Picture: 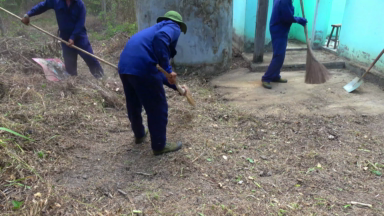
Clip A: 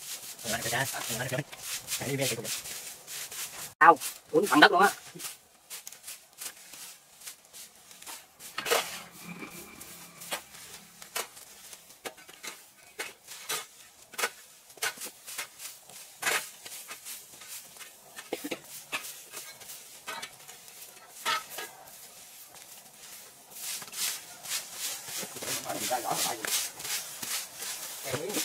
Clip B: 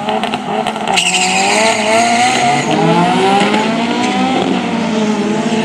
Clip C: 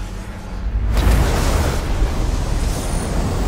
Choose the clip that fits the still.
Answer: A